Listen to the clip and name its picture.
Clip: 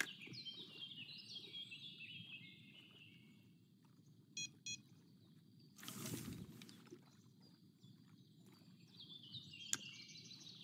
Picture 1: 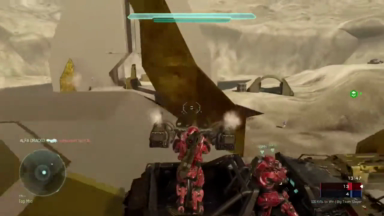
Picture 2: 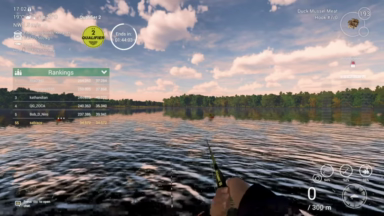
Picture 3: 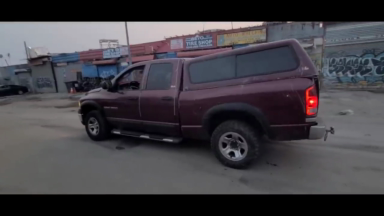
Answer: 2